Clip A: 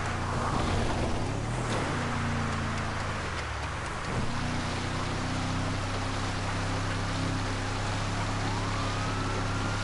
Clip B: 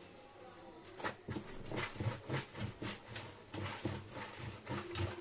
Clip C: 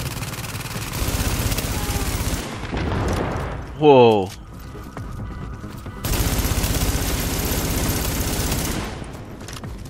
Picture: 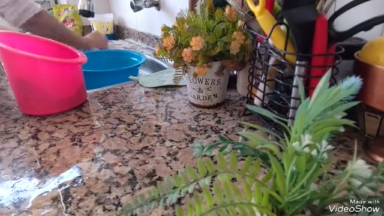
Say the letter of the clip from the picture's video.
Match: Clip B